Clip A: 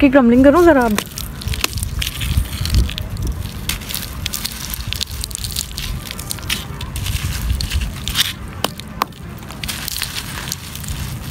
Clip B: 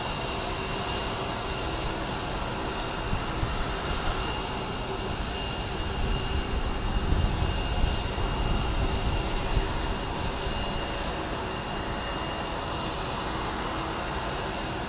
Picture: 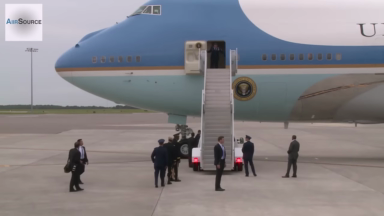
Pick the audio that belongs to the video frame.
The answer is B